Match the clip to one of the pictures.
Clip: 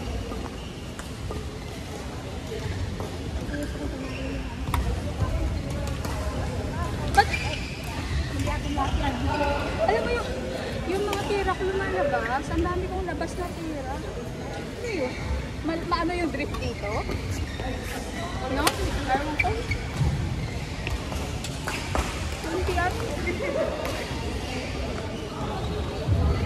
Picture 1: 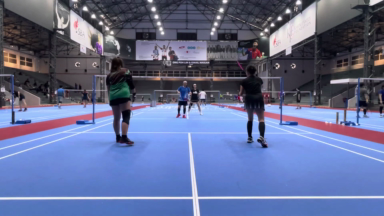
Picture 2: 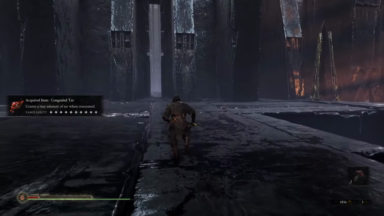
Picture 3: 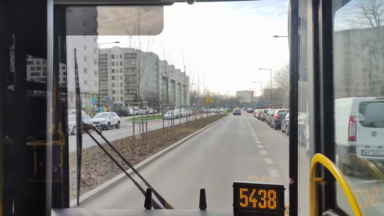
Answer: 1